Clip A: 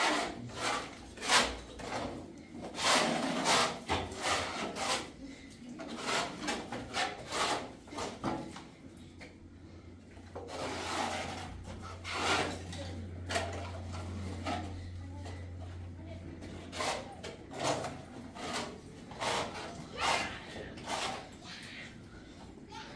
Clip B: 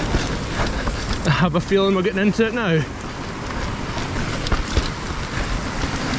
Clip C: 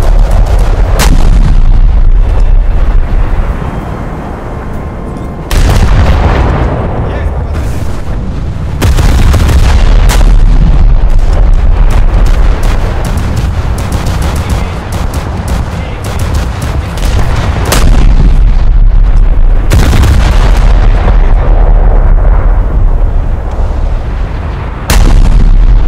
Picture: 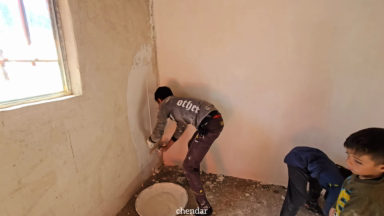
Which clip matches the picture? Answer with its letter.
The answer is A